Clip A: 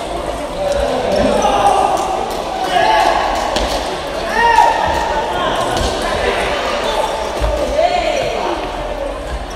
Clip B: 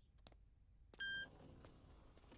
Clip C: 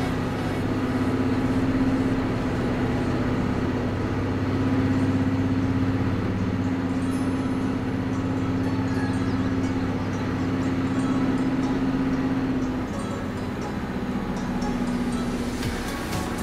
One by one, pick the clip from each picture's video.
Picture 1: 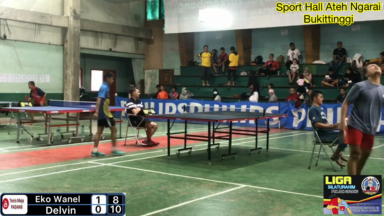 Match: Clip A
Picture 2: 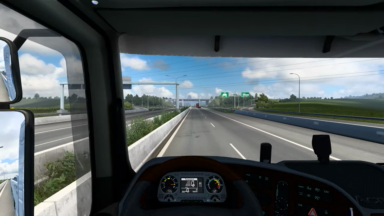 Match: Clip C